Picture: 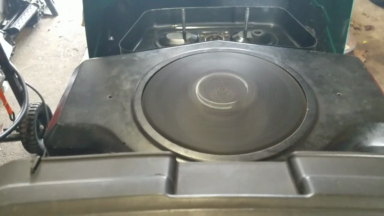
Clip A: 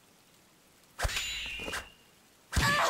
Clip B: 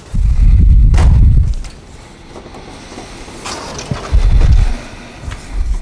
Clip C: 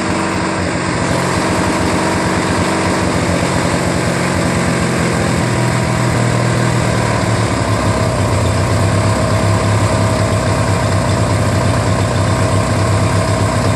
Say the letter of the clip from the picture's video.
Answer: C